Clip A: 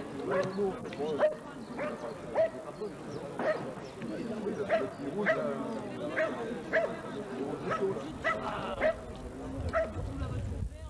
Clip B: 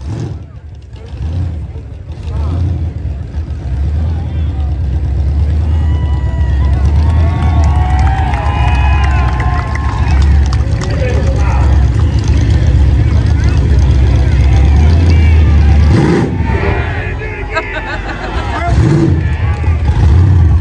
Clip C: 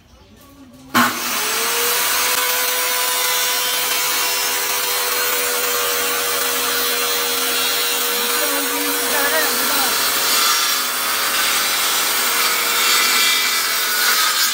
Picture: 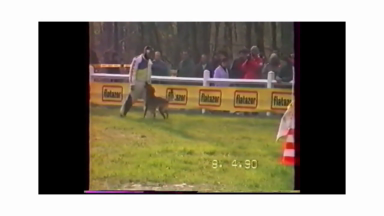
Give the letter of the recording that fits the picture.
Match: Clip A